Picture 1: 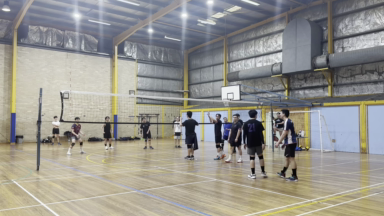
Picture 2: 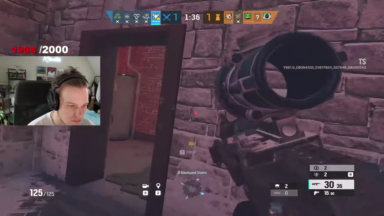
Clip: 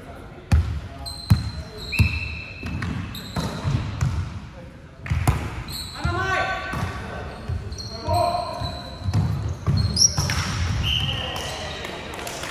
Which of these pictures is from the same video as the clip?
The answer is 1